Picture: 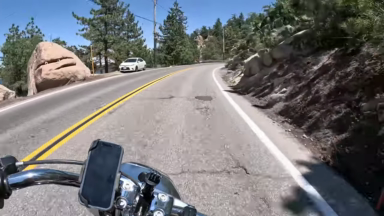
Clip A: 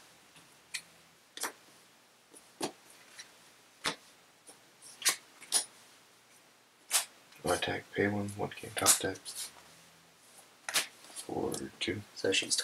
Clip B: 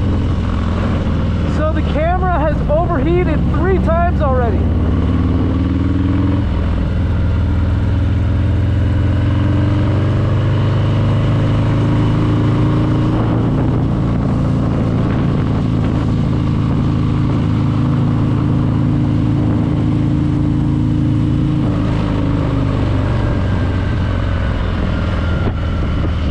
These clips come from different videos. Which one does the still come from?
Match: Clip B